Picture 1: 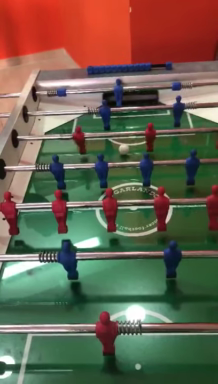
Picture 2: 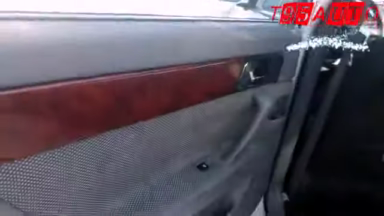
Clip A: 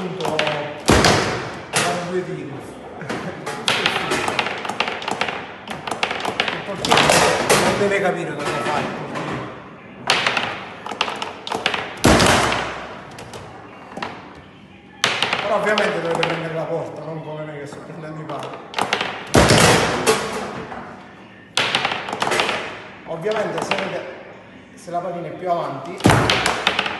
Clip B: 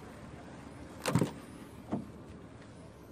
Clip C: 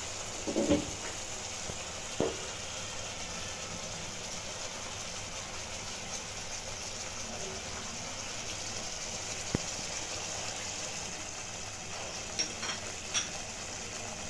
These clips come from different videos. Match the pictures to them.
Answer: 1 A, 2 B